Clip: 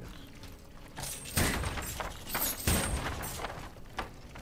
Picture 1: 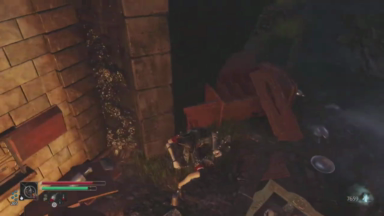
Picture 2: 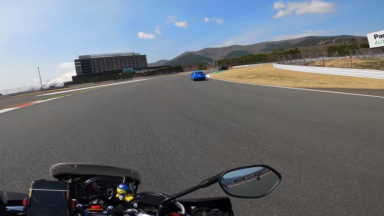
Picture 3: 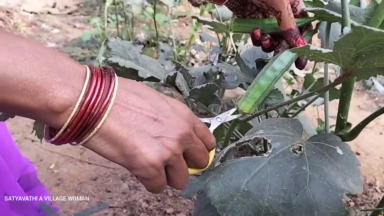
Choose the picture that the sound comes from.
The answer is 1